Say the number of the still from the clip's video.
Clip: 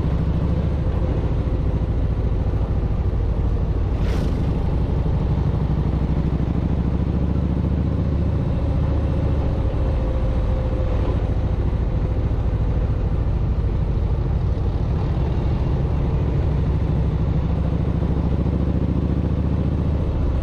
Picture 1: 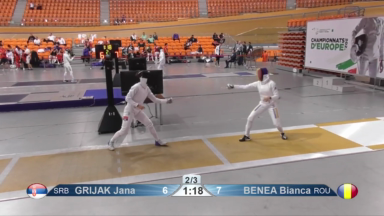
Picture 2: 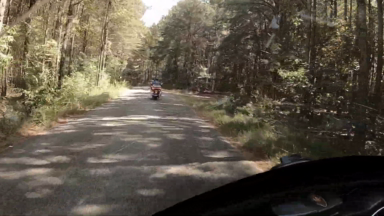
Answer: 2